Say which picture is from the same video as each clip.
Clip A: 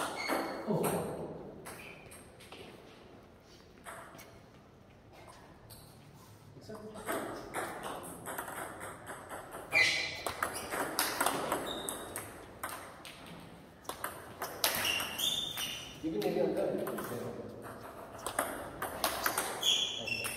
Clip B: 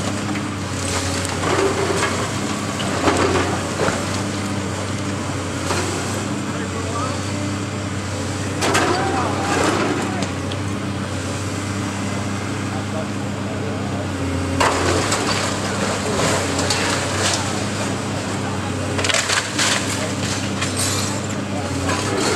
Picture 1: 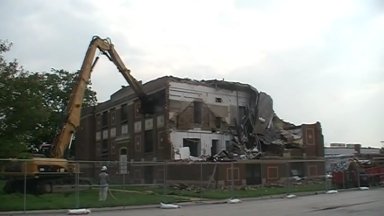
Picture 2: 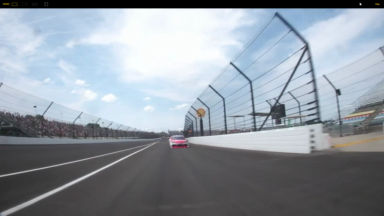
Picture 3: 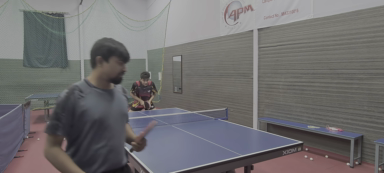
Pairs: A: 3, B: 1